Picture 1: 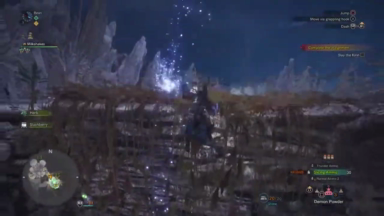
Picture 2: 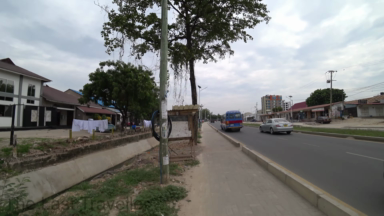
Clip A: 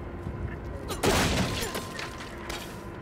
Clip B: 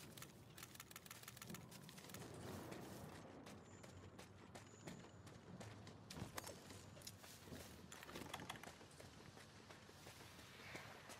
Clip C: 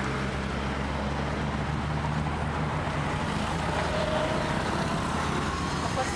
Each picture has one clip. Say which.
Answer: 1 B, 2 C